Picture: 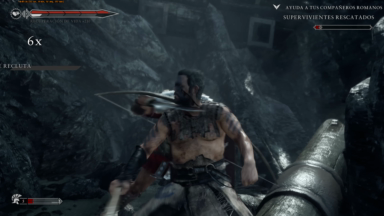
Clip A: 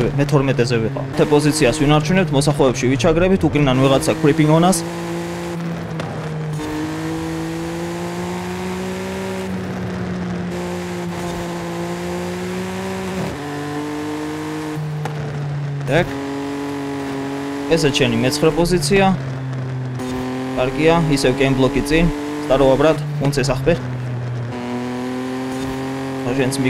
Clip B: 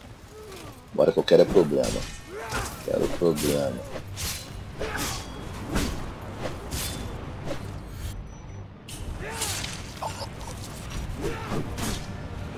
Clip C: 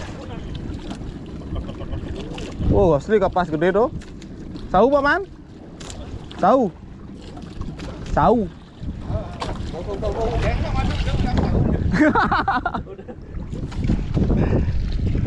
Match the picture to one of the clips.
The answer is B